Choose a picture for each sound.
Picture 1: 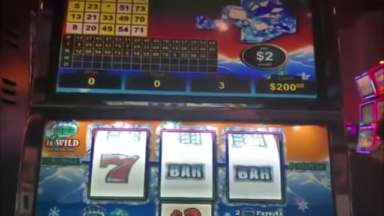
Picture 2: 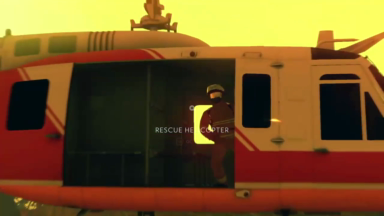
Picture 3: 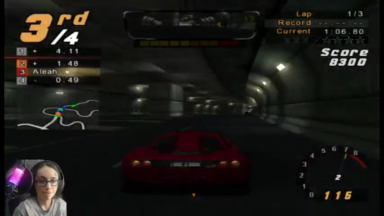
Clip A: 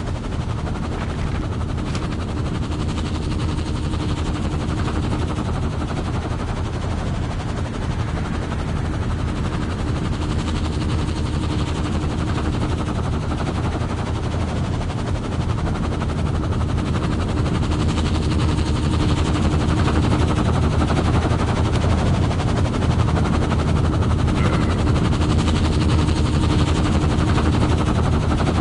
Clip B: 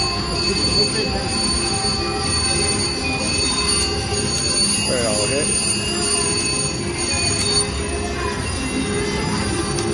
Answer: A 2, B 1